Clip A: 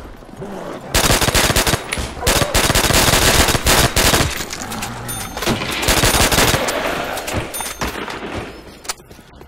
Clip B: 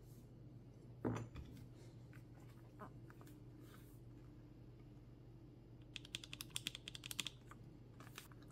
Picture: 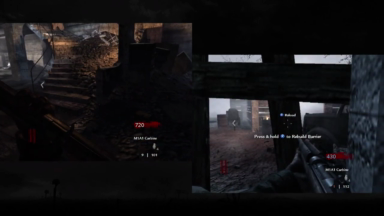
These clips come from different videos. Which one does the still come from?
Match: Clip A